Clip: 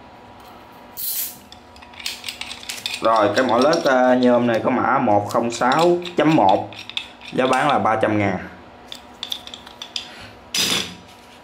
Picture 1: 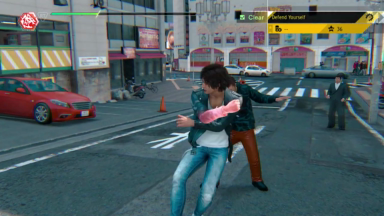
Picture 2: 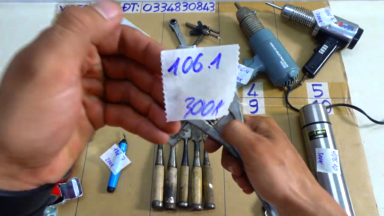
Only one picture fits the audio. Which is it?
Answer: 2